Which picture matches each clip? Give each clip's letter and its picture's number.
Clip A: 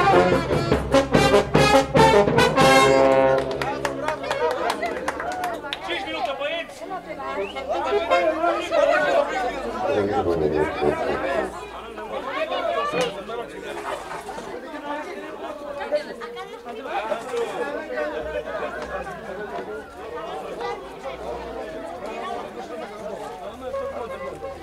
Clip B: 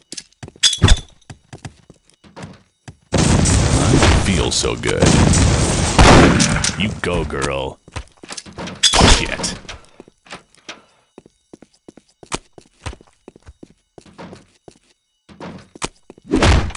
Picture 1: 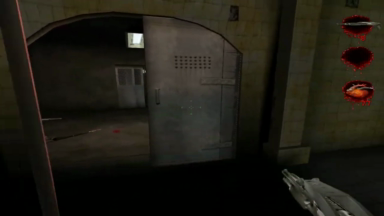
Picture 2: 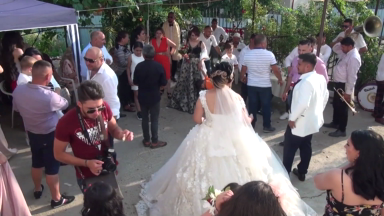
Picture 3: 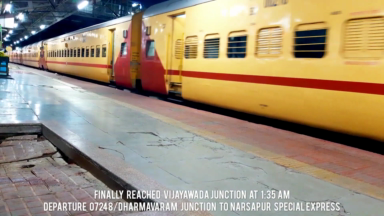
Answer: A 2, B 1